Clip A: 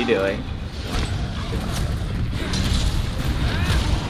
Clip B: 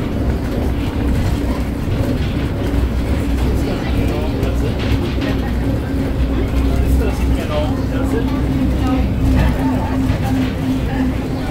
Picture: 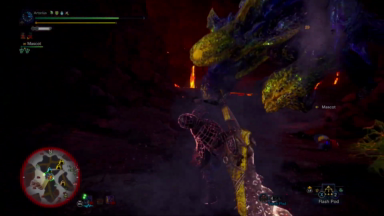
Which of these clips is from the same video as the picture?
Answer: A